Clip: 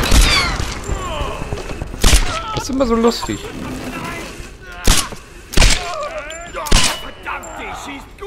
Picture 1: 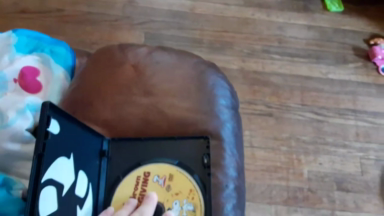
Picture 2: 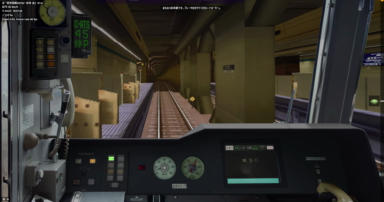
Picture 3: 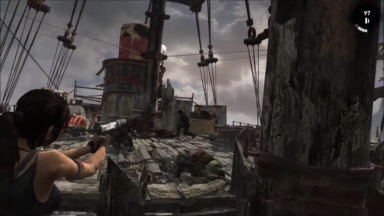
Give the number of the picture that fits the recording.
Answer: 3